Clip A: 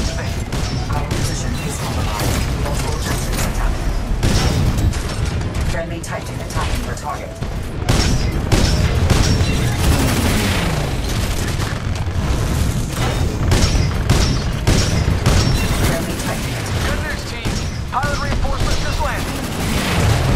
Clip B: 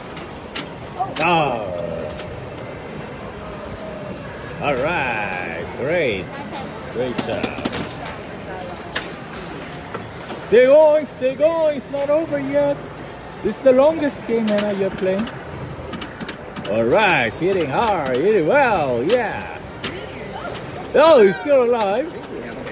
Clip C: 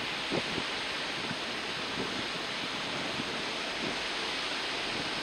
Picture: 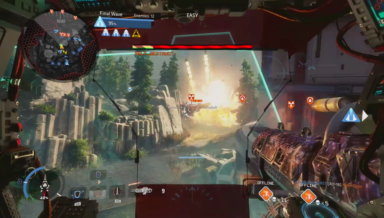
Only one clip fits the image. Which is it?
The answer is A